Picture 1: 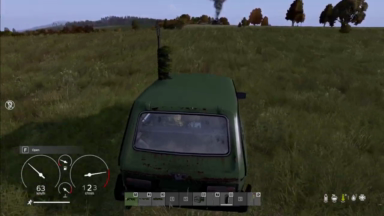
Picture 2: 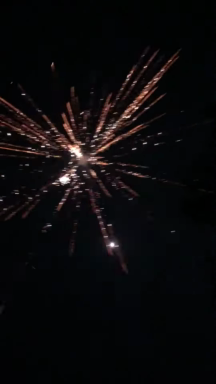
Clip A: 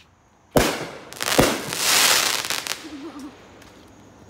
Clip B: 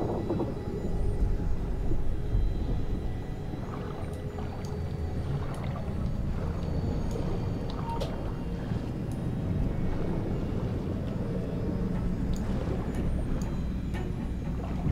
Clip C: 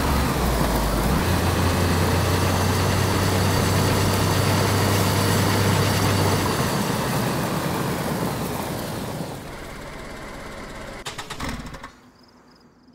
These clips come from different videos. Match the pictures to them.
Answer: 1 C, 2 A